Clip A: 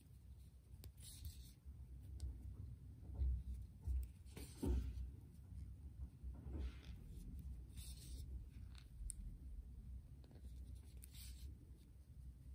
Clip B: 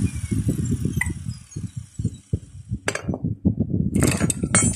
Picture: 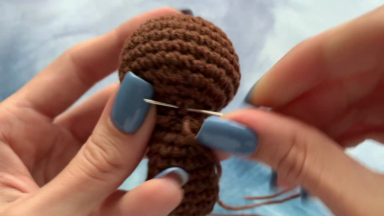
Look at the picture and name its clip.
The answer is A